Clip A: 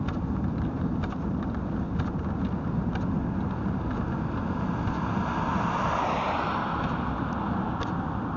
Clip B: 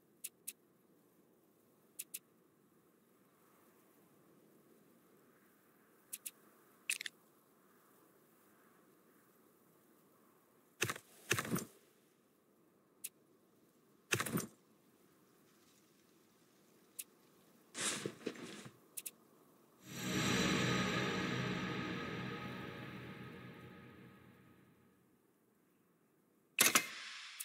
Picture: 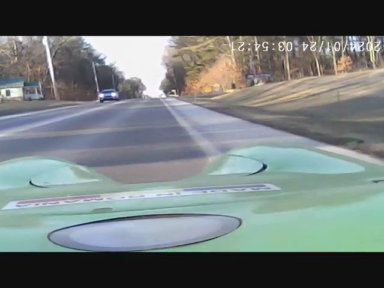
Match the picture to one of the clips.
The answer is A